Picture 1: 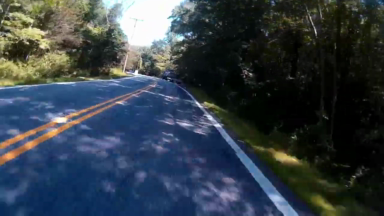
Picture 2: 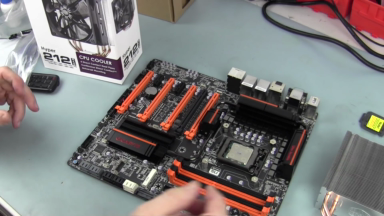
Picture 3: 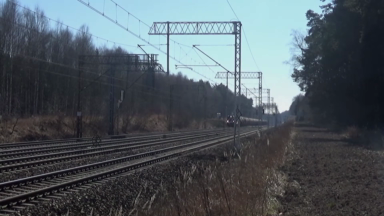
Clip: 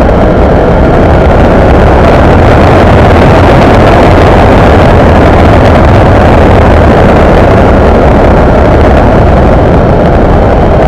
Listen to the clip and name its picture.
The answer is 1